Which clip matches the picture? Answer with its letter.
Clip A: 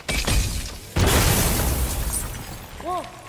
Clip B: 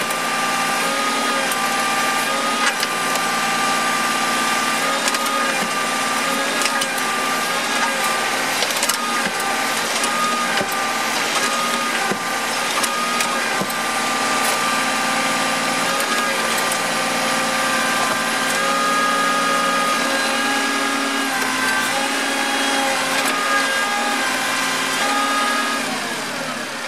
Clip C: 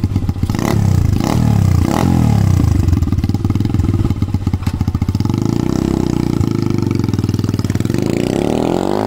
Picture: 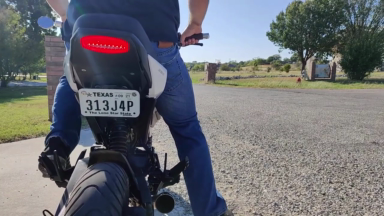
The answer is C